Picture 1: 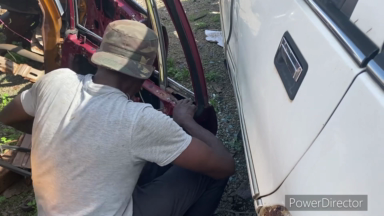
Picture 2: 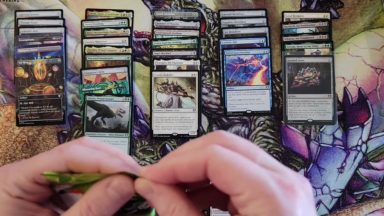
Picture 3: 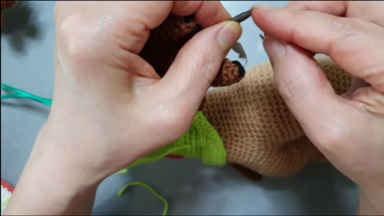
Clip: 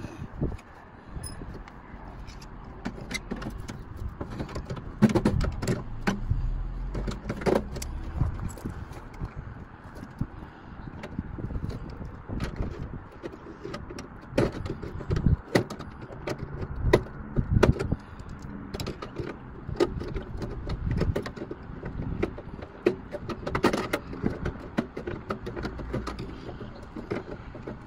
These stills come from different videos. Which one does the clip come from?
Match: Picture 1